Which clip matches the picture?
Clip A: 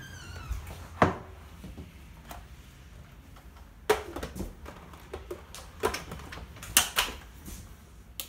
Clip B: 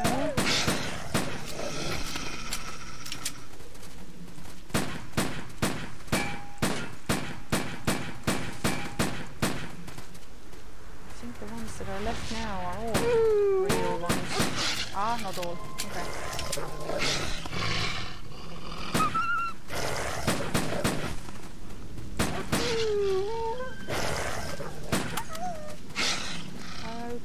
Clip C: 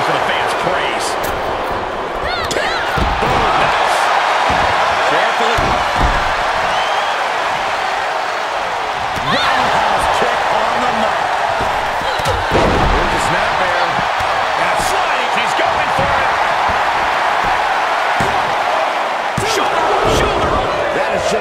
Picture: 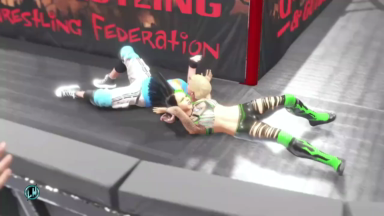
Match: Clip C